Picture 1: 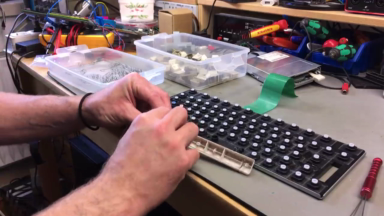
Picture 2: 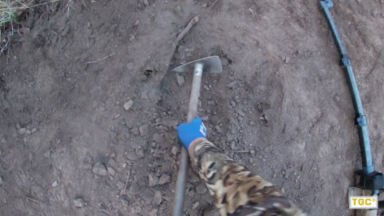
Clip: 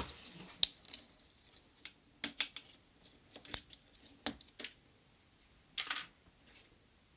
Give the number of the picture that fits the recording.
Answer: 1